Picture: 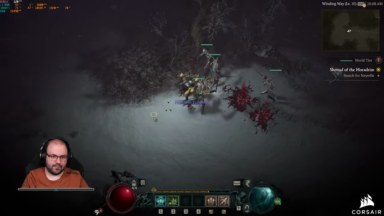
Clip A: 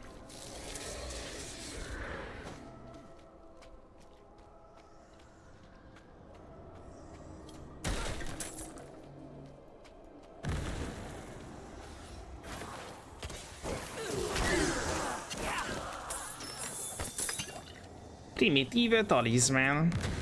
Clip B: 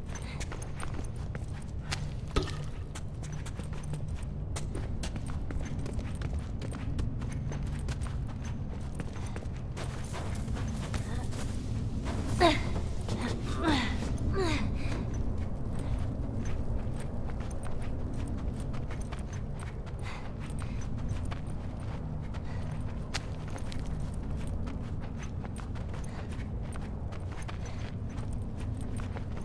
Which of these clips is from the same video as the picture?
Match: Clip A